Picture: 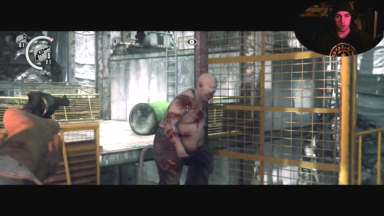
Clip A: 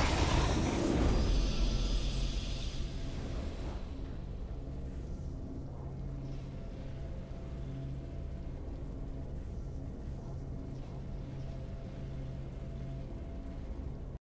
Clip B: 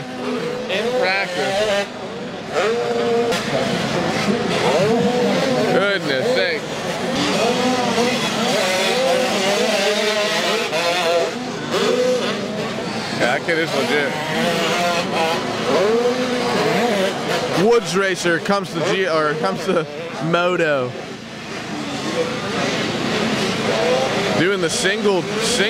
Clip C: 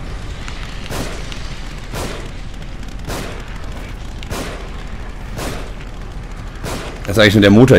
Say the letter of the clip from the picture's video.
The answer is C